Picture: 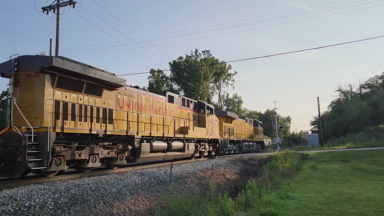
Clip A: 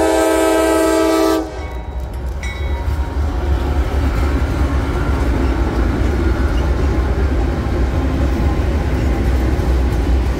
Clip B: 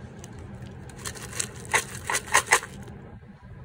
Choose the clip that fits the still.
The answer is A